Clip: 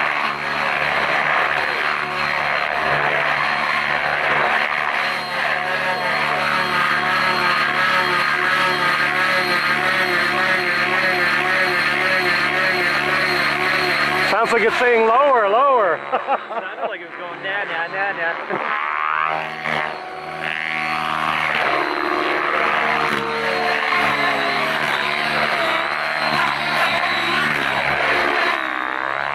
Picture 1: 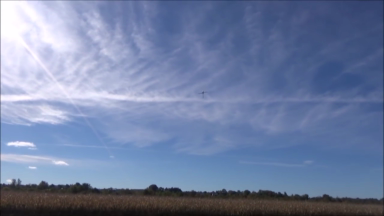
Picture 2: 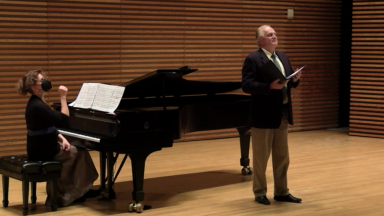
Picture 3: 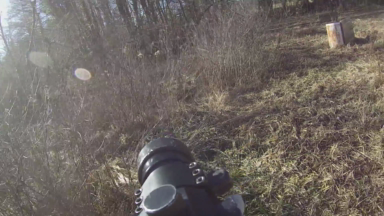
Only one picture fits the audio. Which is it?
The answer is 1